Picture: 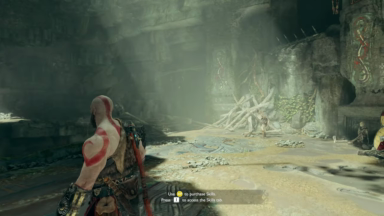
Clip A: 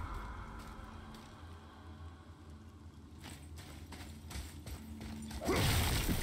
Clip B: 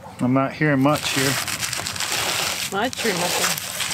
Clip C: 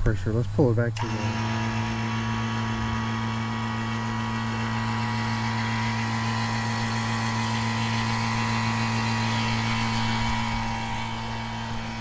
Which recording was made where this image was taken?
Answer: A